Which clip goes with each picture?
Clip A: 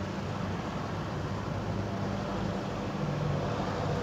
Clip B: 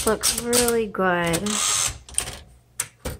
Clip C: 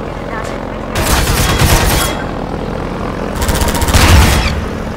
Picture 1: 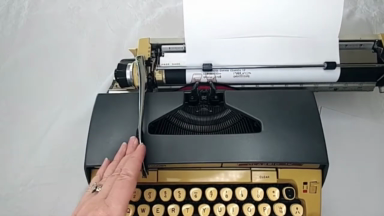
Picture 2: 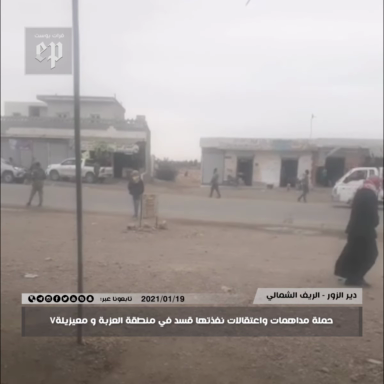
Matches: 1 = B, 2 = A